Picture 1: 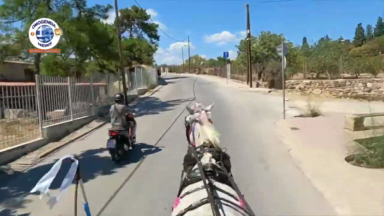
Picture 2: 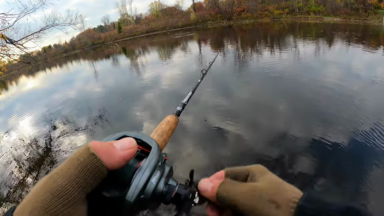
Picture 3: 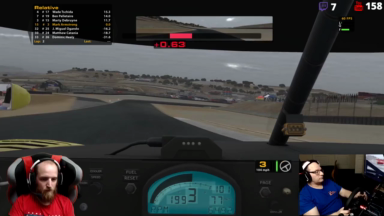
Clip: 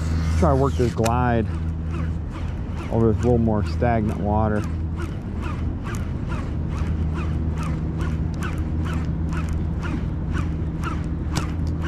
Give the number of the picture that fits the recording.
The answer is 2